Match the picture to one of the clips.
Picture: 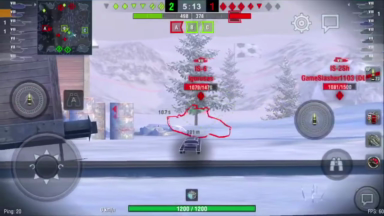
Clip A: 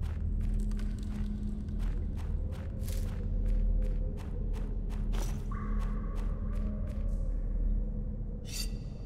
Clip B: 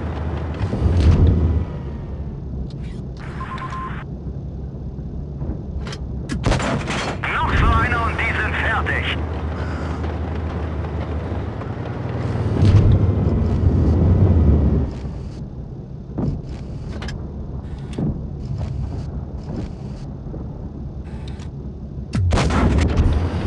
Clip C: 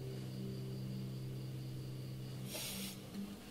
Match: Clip B